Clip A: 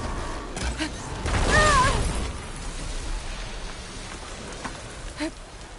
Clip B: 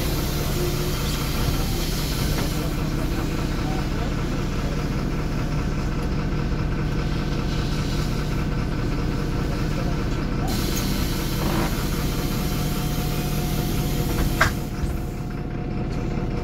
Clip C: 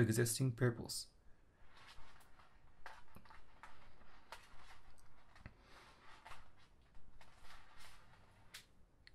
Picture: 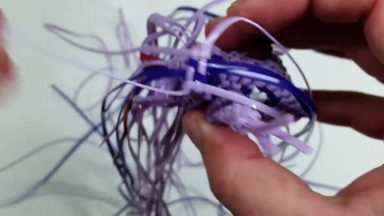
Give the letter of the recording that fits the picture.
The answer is C